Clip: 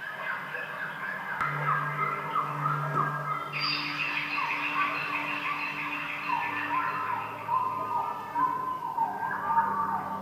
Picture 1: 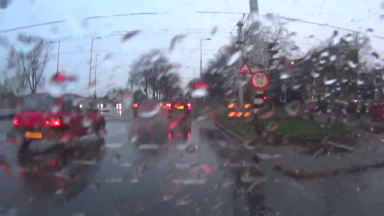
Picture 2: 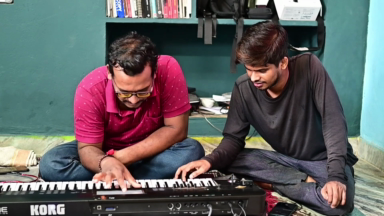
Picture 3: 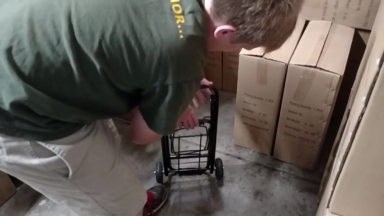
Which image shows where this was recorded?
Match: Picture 2